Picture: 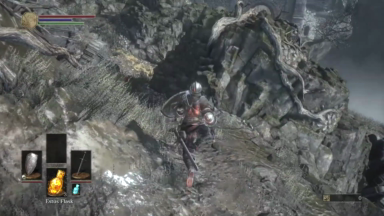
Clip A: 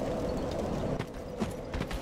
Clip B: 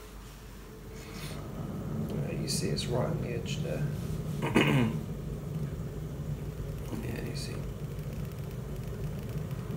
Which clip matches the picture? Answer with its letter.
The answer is A